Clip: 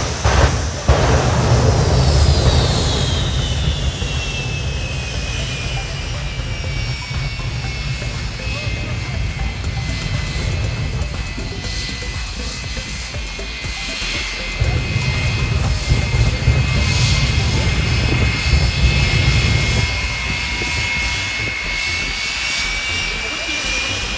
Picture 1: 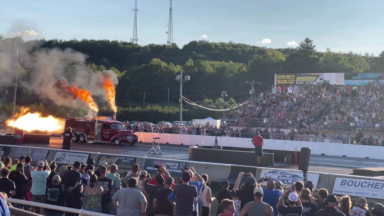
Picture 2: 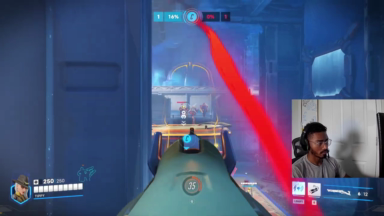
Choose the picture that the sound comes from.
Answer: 1